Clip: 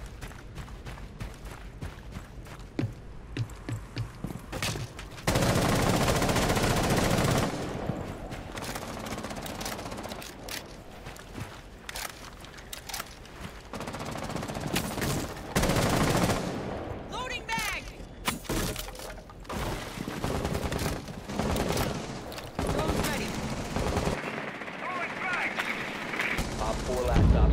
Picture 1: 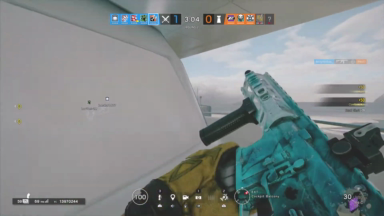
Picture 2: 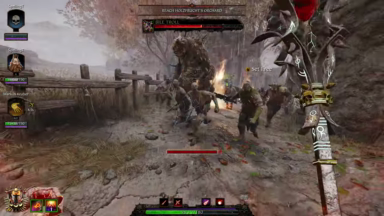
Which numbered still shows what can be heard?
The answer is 1